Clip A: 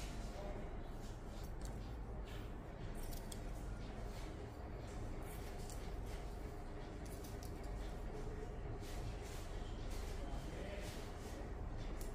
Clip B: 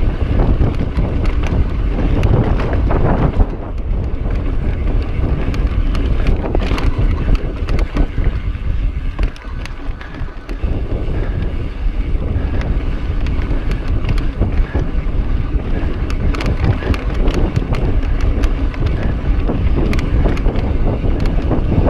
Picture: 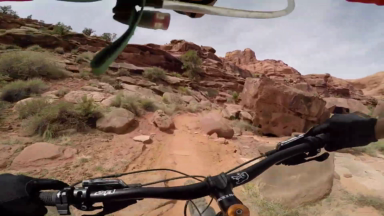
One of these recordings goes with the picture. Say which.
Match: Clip B